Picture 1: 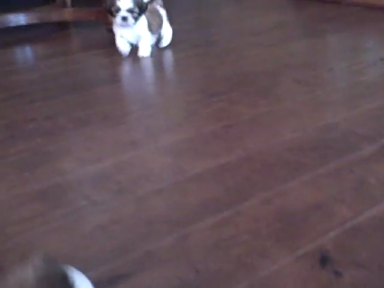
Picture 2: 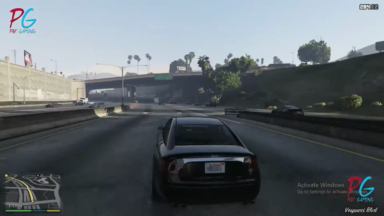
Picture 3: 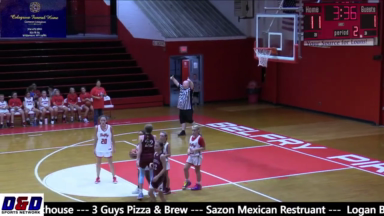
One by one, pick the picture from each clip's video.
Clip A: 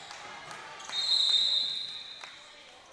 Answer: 3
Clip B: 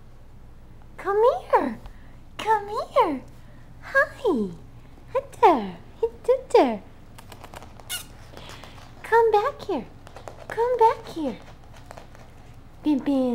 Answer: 1